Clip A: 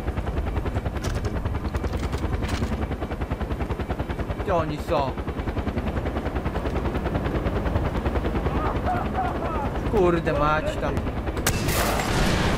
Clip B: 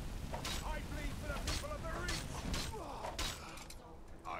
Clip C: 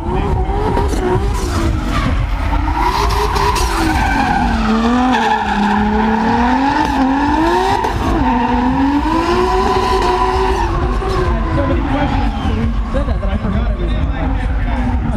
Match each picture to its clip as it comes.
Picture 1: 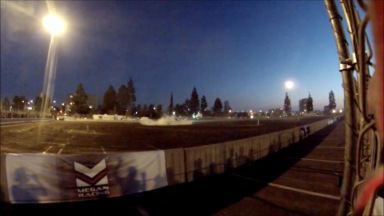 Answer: C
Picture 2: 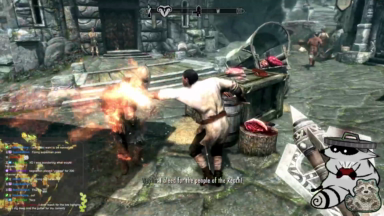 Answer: B